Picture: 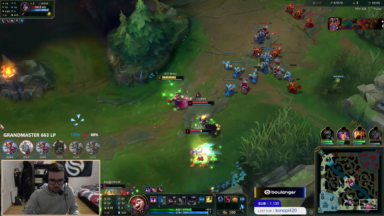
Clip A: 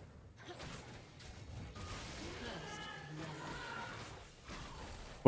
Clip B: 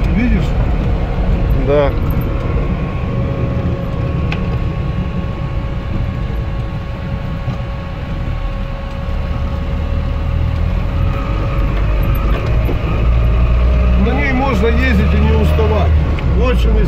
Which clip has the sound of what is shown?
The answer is A